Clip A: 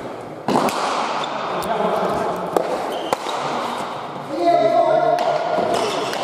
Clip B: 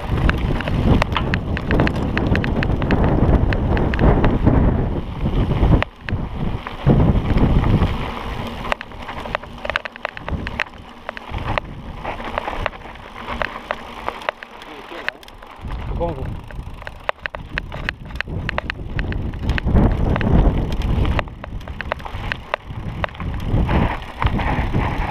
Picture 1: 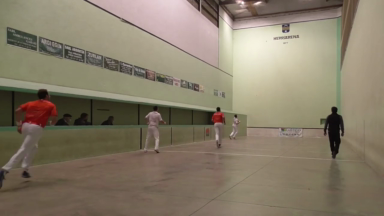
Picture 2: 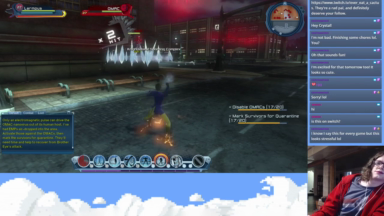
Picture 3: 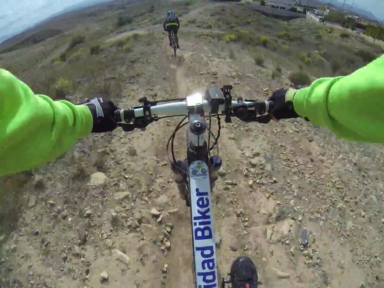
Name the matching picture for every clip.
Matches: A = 1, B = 3